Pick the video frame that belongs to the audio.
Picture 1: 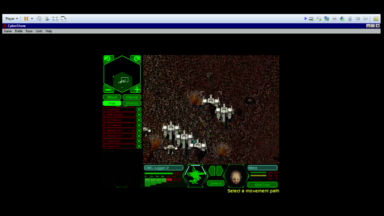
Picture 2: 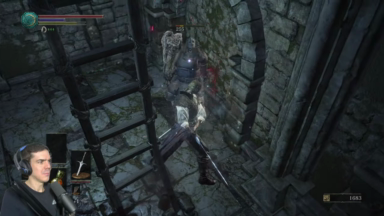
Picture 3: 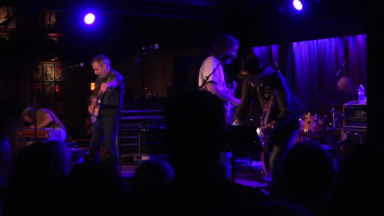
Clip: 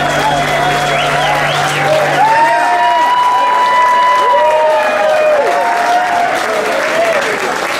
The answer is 3